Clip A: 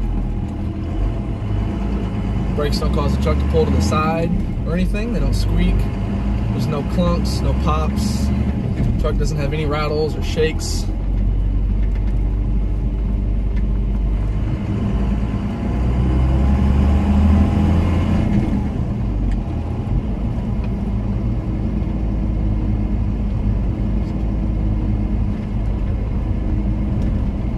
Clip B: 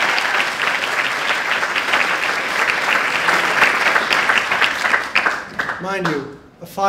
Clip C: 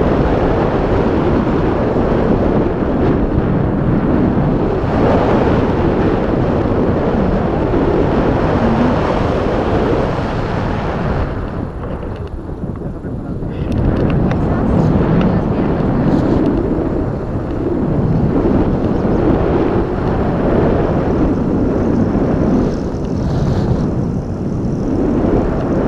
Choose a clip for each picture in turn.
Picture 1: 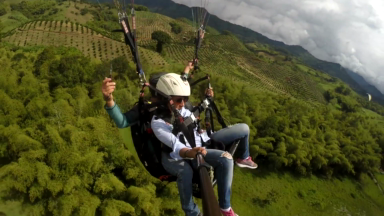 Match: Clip C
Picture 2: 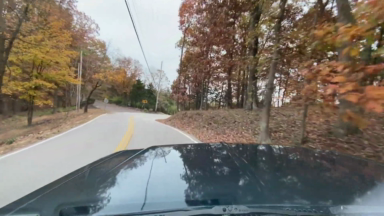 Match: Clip A